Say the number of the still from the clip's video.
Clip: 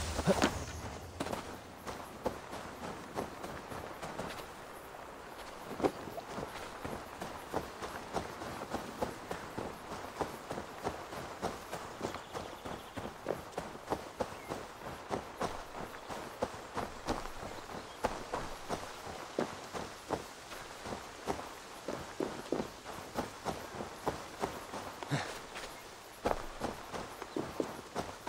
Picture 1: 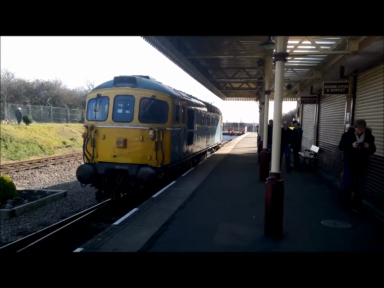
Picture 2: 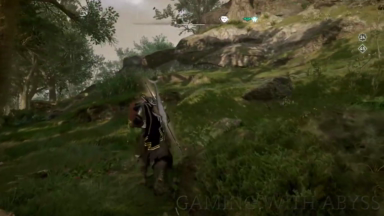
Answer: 2